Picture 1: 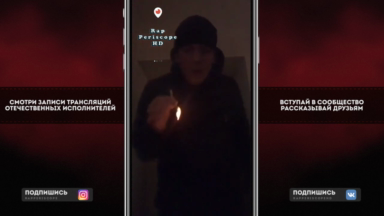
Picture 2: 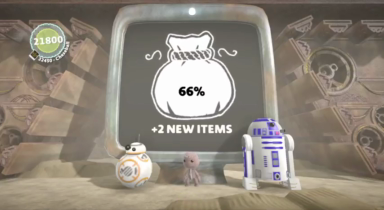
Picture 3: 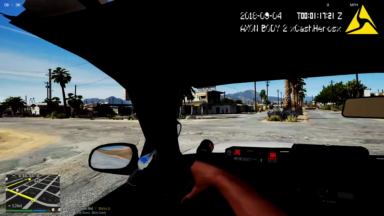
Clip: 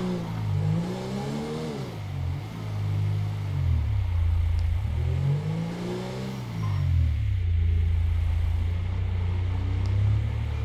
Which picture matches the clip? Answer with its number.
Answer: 3